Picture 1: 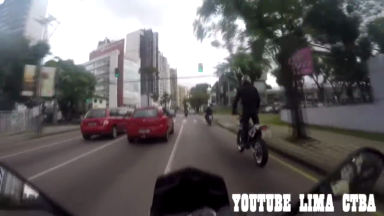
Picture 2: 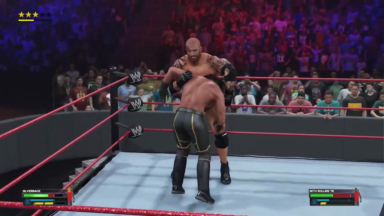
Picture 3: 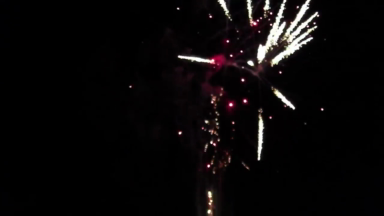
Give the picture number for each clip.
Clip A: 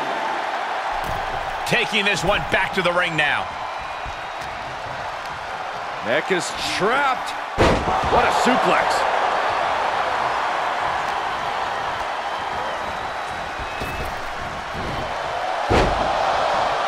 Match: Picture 2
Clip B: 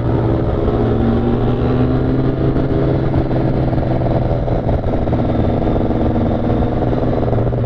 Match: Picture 1